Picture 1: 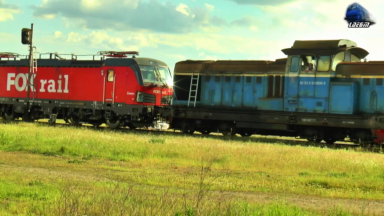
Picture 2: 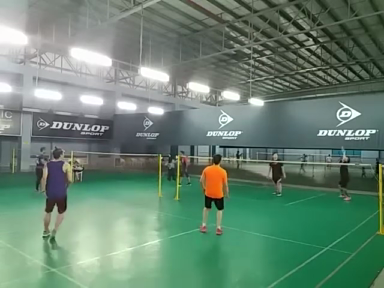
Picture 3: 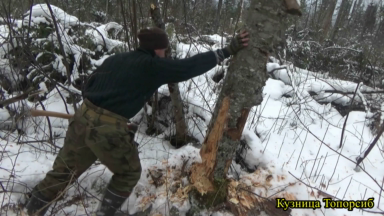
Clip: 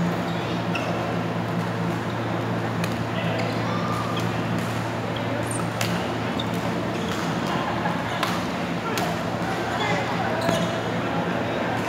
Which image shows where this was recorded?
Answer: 2